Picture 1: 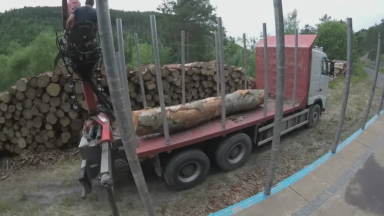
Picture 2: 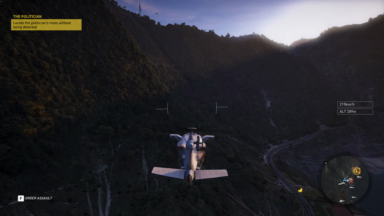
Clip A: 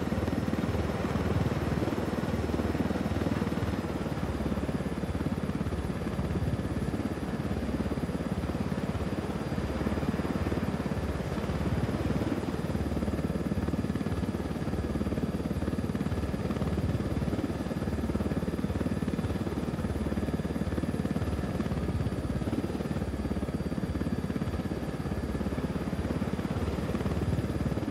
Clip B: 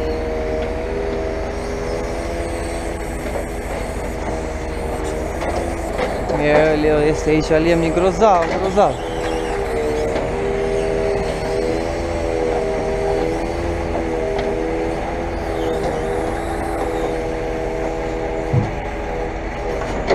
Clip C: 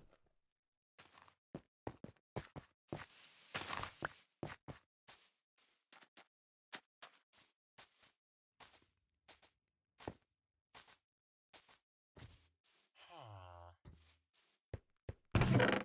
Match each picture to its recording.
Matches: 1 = B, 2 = A